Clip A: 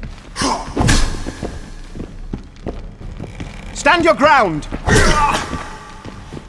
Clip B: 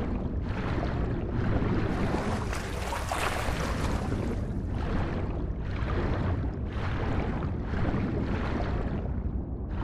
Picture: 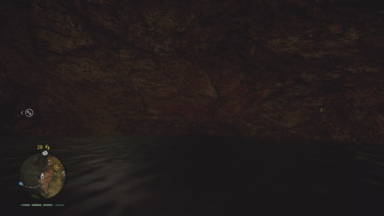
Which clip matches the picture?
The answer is B